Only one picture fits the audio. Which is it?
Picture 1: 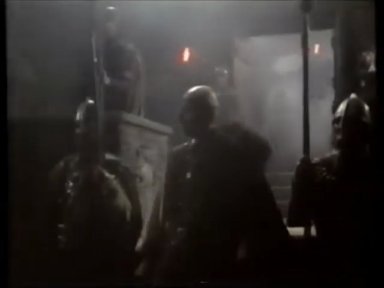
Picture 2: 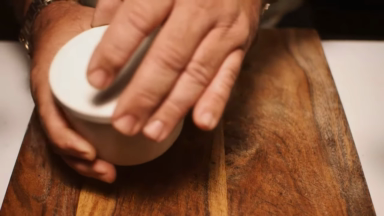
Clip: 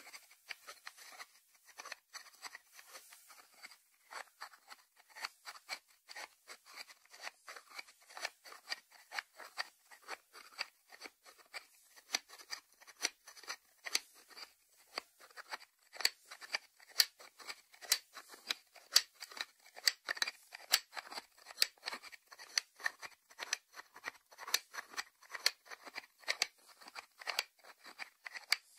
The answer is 2